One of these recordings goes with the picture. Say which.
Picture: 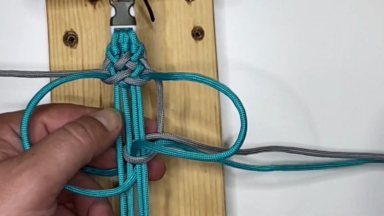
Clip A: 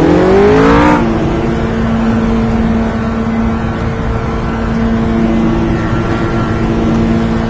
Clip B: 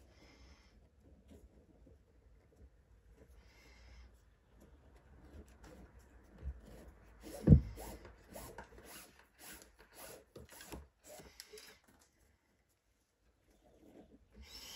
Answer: B